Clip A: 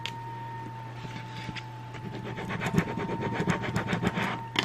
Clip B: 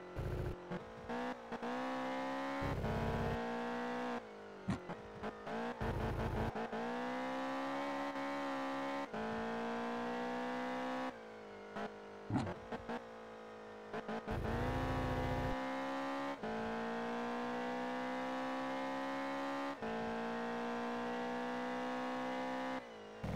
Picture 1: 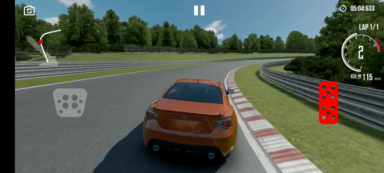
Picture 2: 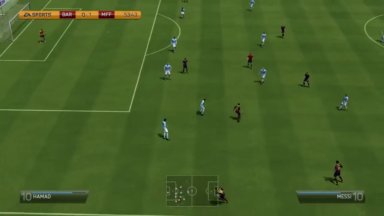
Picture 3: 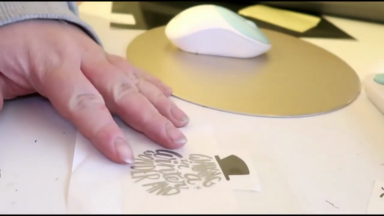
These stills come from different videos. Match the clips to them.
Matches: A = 3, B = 1